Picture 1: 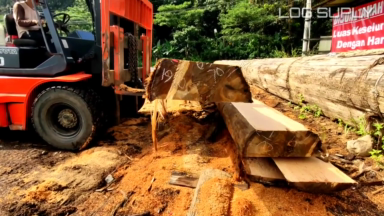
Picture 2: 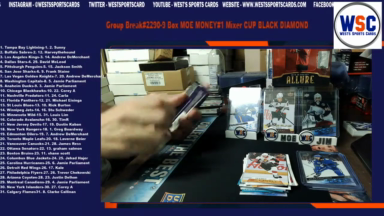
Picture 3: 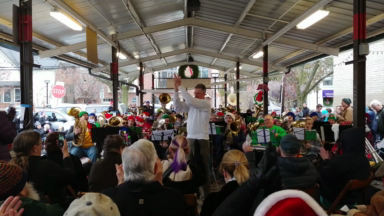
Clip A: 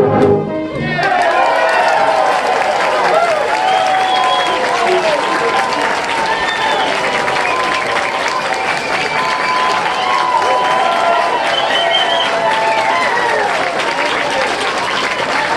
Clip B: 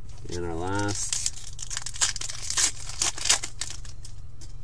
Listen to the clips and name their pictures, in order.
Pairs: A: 3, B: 2